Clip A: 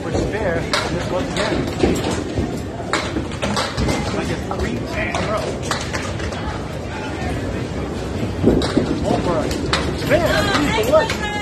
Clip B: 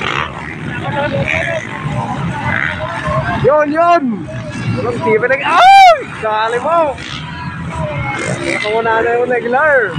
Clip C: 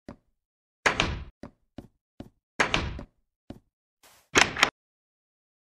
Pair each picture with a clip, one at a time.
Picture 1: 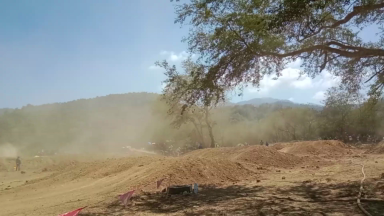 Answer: B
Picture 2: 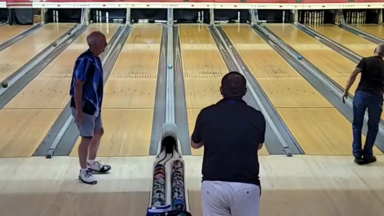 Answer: A